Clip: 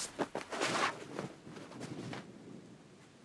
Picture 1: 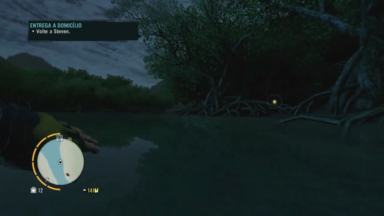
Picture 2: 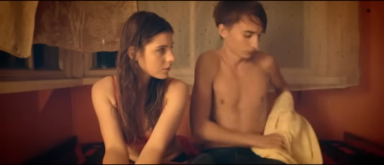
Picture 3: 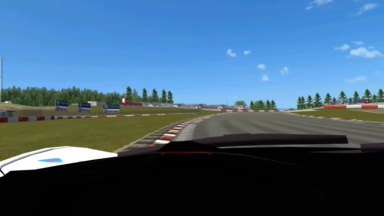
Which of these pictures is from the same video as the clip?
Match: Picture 2